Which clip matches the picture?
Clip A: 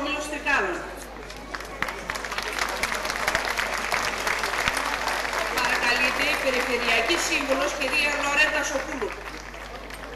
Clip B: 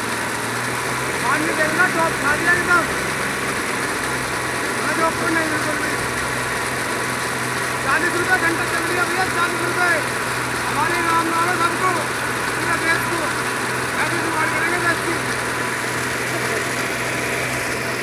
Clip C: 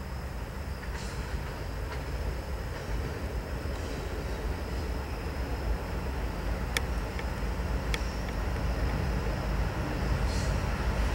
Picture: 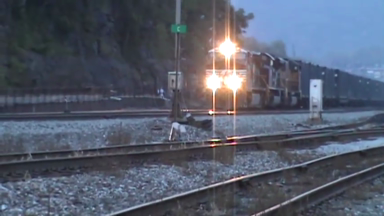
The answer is C